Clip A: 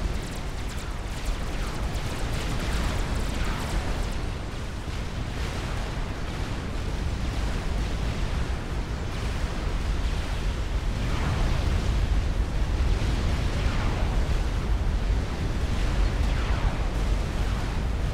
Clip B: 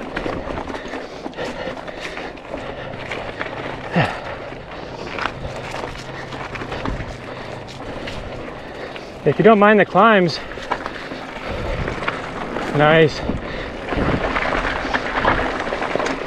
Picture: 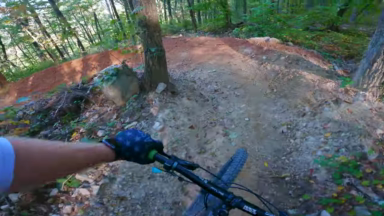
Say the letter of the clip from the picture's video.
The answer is B